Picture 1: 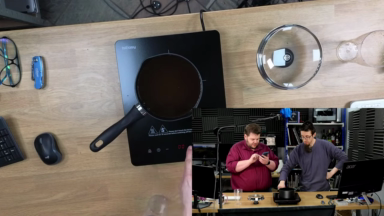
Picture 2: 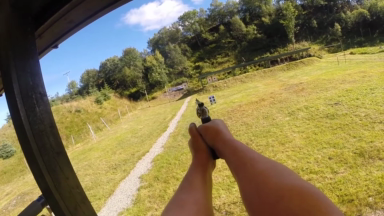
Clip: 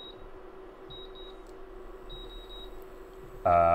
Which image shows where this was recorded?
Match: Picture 1